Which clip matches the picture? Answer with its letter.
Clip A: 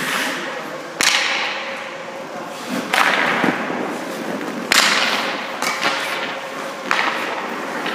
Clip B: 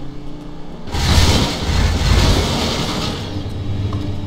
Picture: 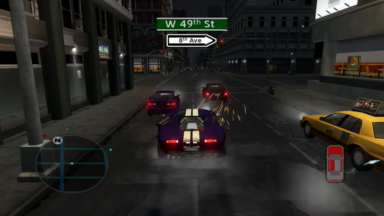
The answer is B